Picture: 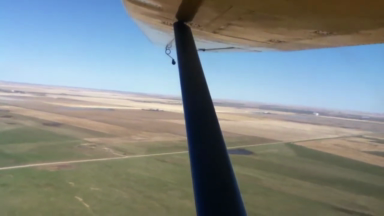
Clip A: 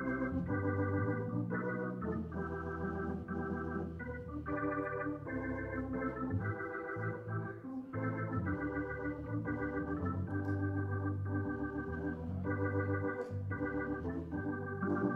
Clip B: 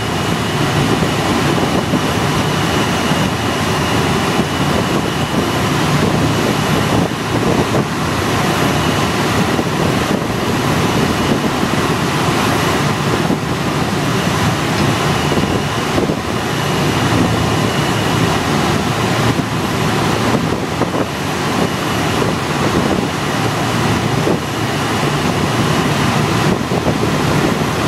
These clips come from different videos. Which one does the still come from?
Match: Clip B